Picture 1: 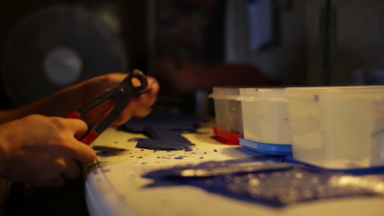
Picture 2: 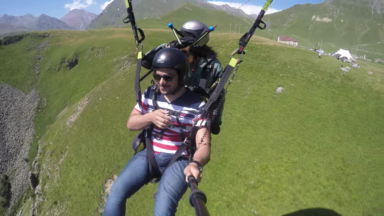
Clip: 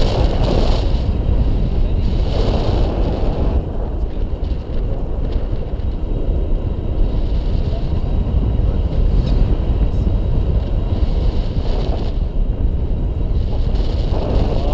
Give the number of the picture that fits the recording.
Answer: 2